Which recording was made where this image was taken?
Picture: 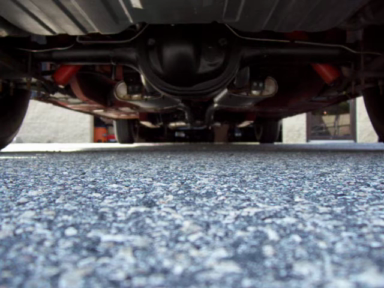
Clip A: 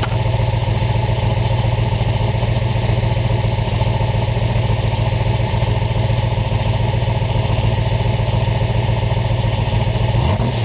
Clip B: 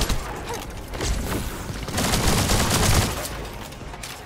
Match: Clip A